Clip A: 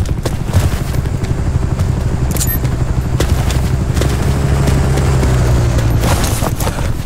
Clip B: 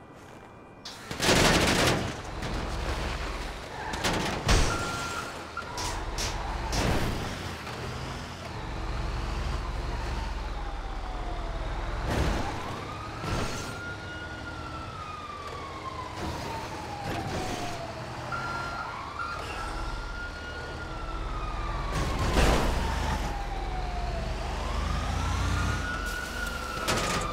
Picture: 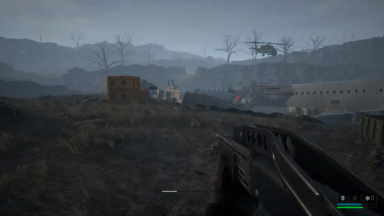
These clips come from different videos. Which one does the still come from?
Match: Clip A